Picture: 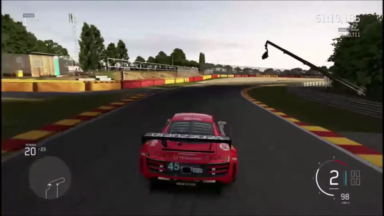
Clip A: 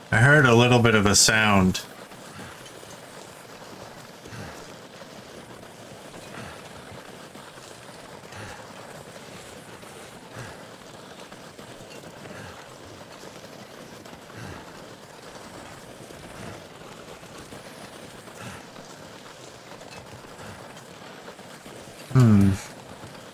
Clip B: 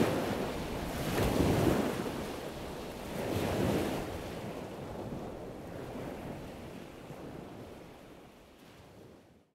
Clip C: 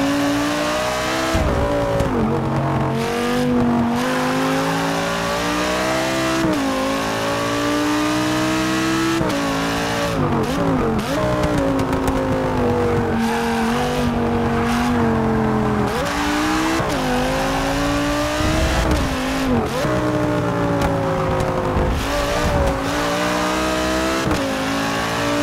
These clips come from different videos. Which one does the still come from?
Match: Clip C